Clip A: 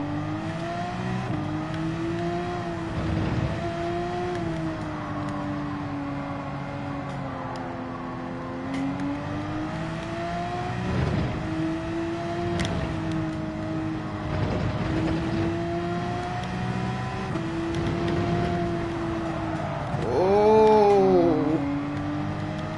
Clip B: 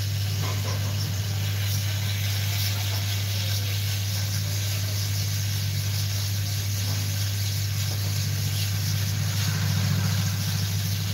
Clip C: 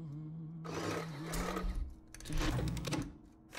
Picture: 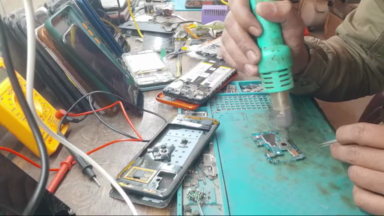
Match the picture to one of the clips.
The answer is B